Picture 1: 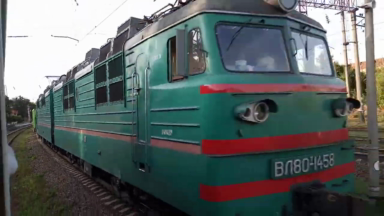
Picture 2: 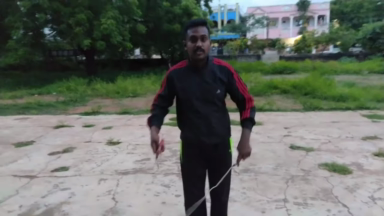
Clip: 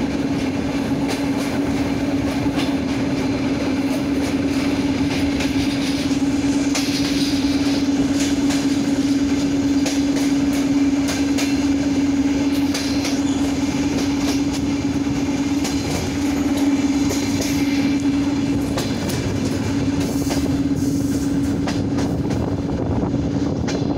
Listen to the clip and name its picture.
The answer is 1